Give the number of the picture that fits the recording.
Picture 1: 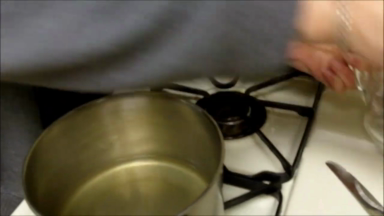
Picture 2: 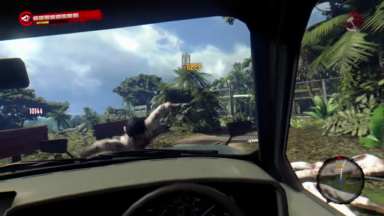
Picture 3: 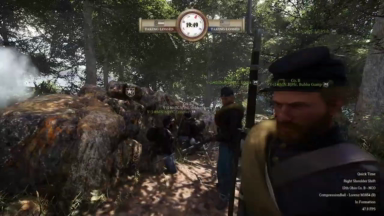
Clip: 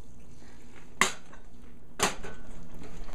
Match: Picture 1